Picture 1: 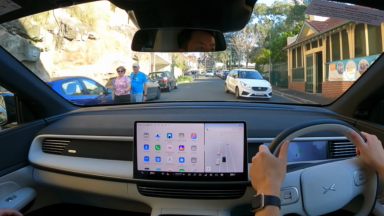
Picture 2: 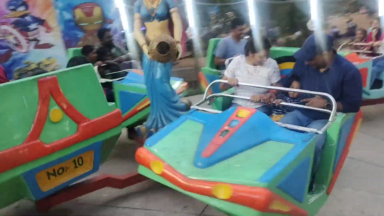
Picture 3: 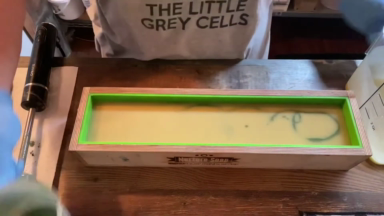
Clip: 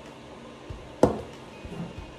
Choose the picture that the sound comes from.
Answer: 3